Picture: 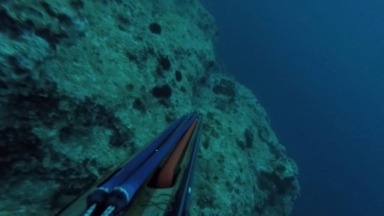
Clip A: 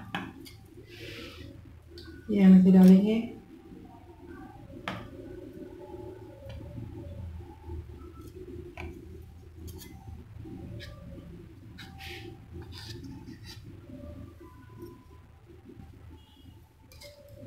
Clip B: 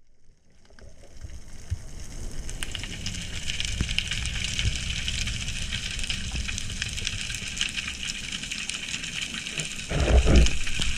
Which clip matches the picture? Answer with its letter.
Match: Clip B